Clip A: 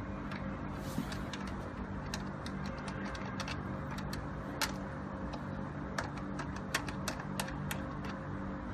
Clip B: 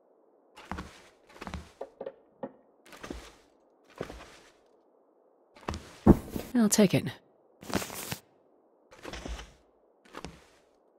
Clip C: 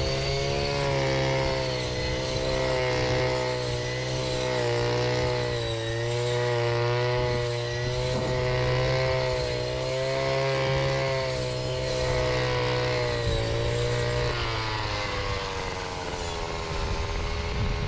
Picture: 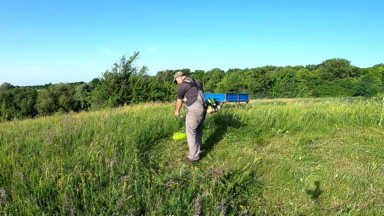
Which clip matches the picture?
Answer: C